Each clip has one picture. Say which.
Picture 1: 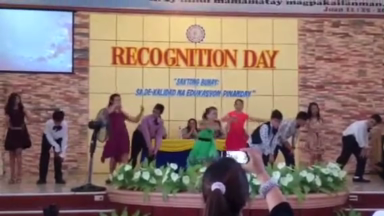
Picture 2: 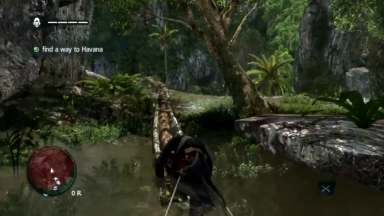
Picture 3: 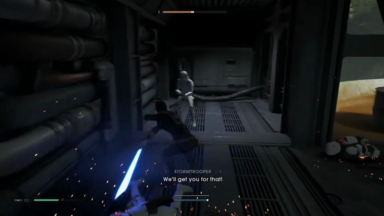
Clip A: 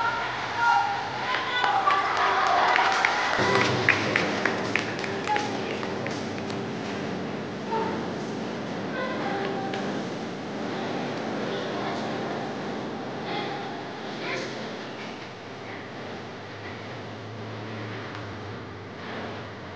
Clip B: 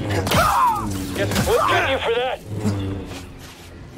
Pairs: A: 1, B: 3